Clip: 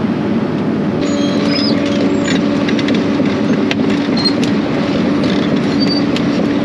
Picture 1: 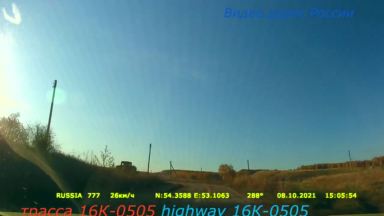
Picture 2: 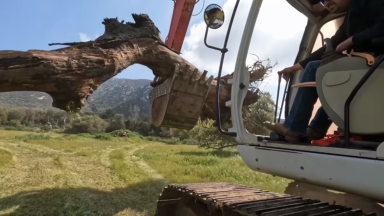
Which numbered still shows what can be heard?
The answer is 2